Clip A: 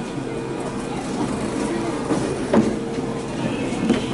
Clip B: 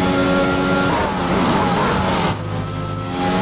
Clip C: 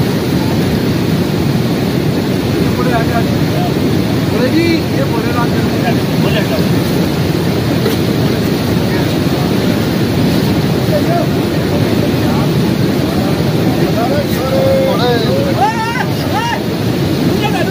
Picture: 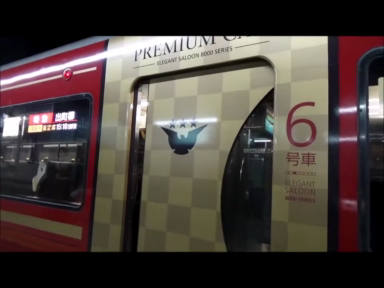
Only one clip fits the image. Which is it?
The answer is A